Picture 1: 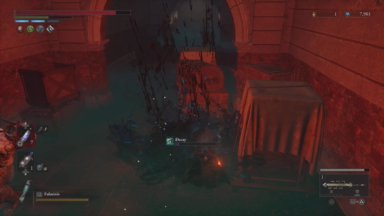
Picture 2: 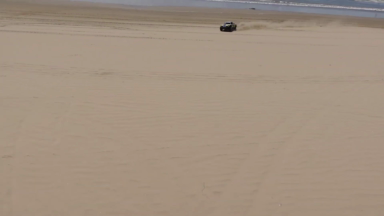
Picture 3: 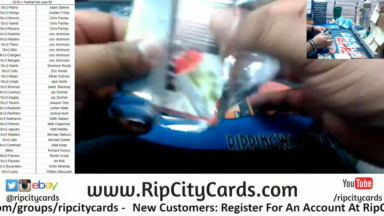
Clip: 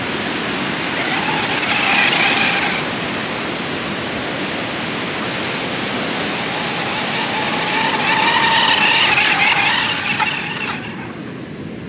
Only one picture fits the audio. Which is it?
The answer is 2